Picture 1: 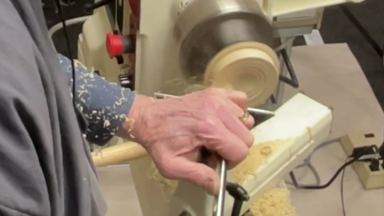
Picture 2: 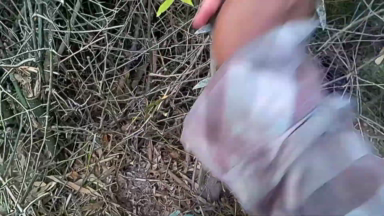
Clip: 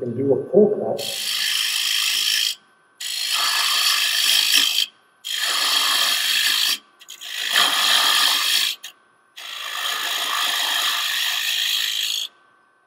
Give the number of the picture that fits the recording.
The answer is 1